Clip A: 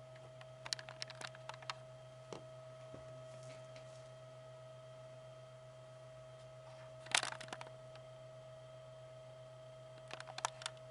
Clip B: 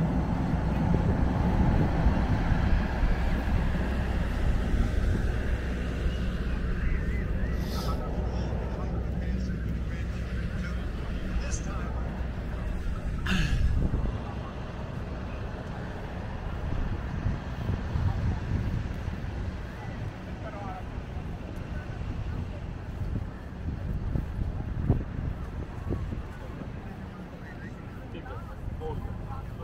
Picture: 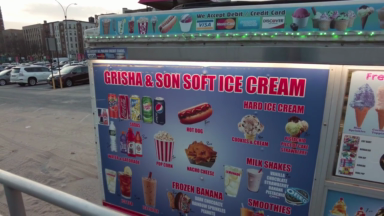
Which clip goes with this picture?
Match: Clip B